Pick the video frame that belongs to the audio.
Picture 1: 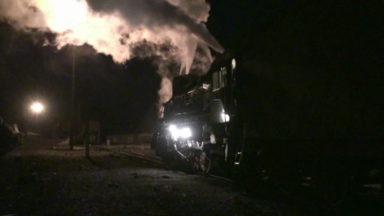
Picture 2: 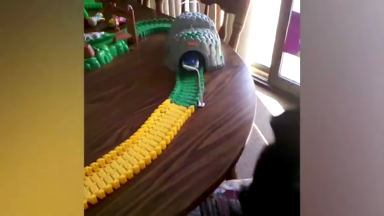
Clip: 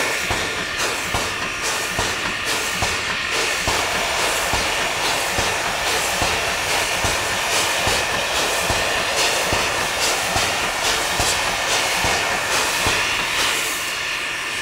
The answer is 1